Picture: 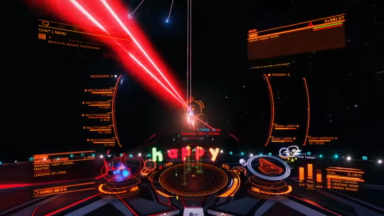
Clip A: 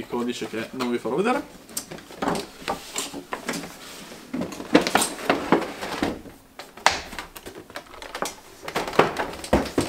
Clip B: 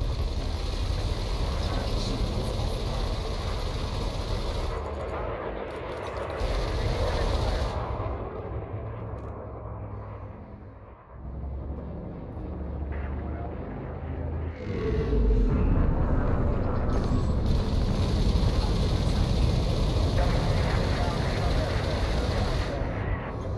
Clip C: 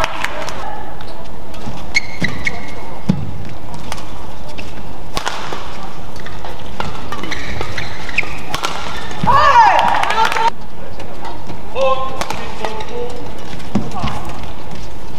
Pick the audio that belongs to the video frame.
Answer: B